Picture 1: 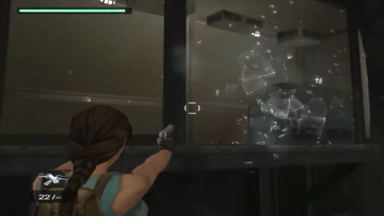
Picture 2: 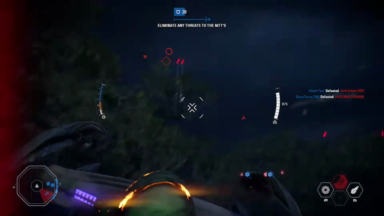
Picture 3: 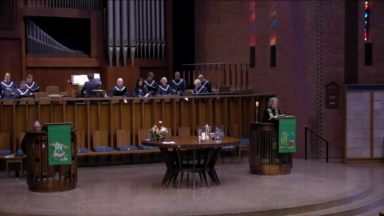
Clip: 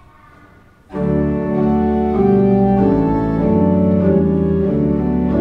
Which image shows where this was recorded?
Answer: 3